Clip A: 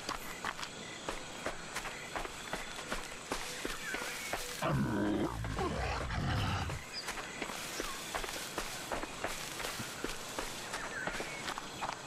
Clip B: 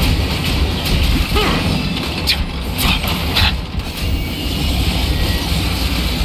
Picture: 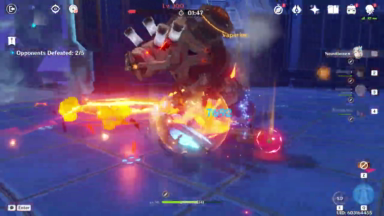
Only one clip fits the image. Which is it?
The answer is B